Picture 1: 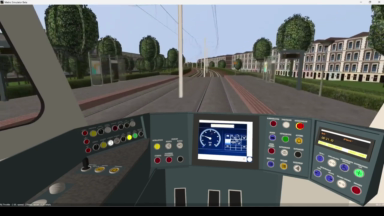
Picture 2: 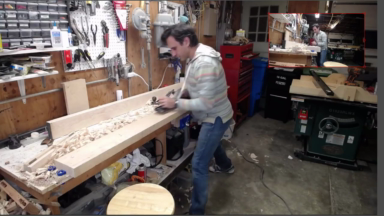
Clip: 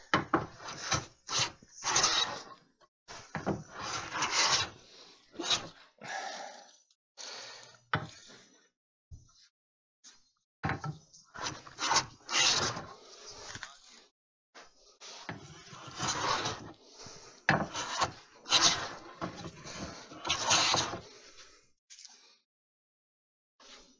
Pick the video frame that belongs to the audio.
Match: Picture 2